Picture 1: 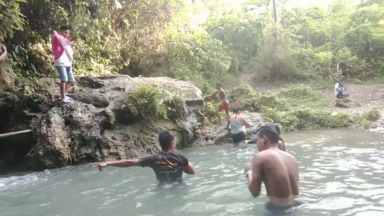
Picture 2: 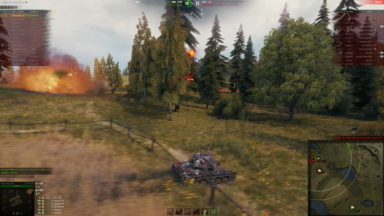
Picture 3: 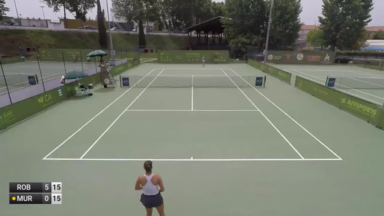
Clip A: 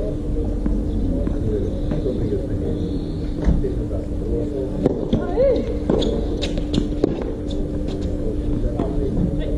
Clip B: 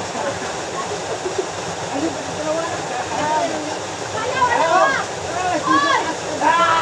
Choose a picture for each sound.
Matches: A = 3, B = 1